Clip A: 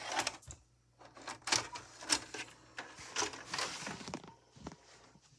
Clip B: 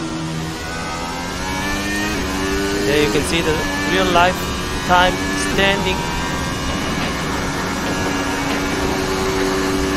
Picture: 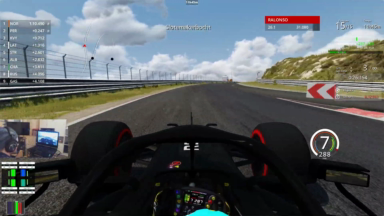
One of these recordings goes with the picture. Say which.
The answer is B